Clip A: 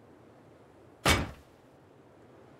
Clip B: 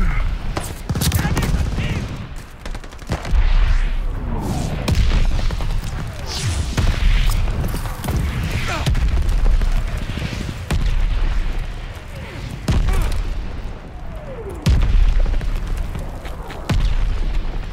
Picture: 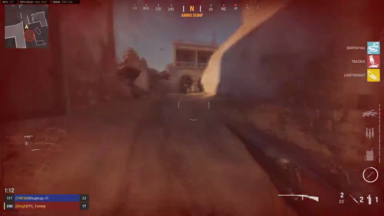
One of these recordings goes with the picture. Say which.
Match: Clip B